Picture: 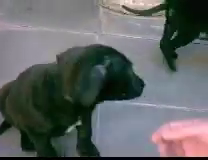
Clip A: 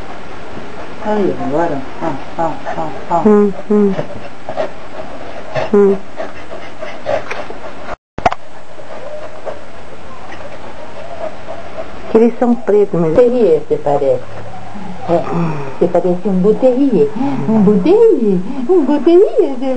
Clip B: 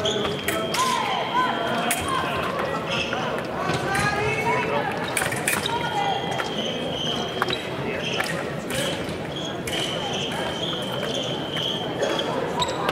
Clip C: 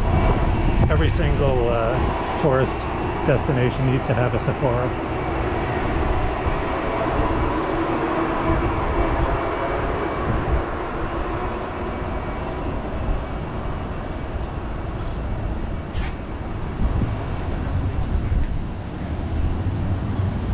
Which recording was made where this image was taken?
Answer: A